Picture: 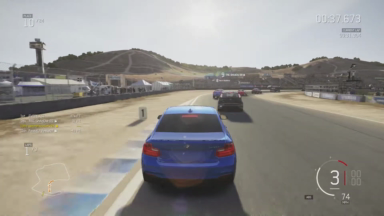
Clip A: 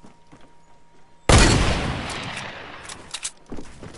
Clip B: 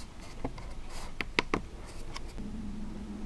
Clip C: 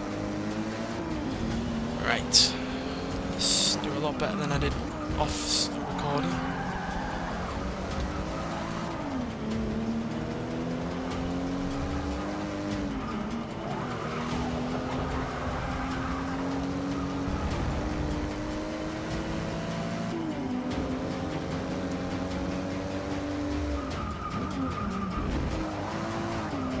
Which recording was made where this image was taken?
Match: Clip C